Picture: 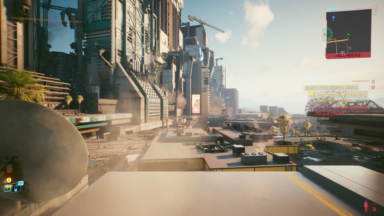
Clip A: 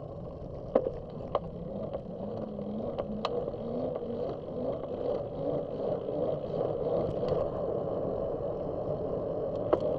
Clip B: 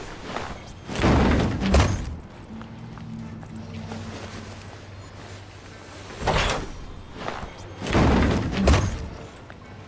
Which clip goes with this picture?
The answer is B